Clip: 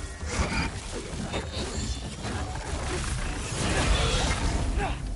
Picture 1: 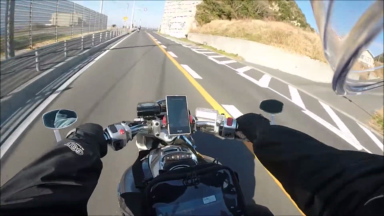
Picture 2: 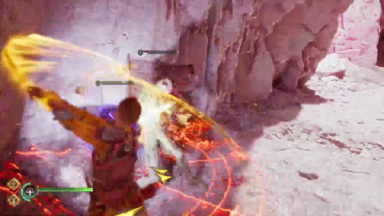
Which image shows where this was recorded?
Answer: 2